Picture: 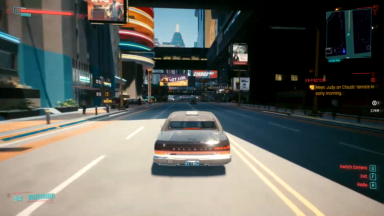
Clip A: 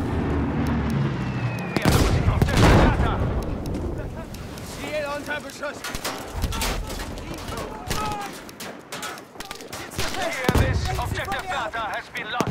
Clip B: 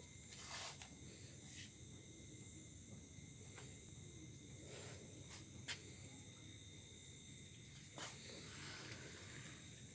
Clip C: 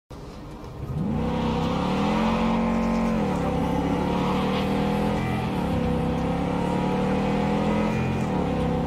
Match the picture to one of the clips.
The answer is C